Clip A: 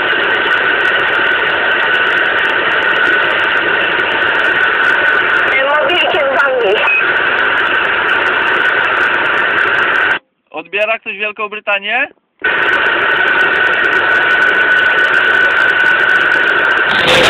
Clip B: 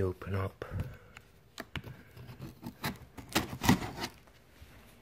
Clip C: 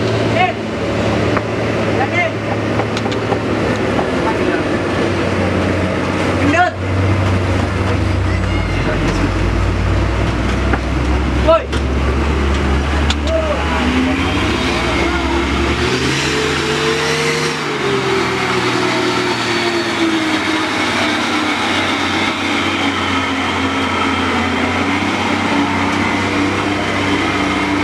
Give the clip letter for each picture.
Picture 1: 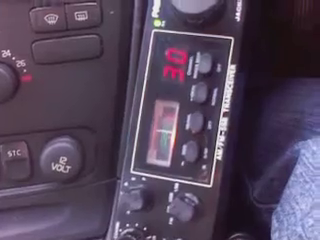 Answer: A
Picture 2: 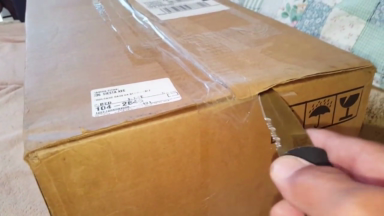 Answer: B